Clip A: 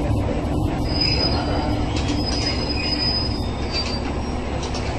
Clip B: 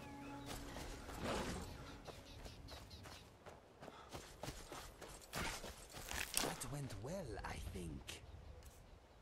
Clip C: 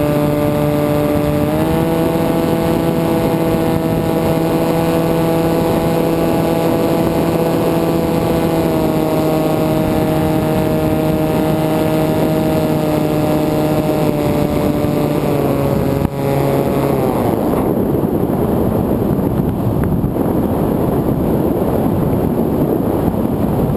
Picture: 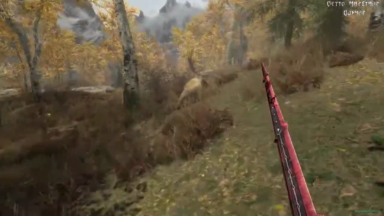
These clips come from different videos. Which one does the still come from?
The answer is B